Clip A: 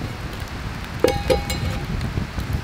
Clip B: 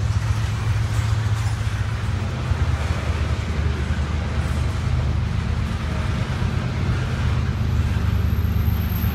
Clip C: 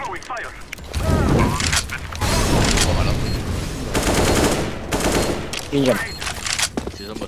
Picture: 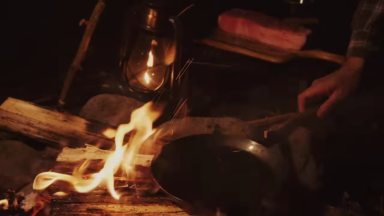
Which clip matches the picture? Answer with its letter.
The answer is A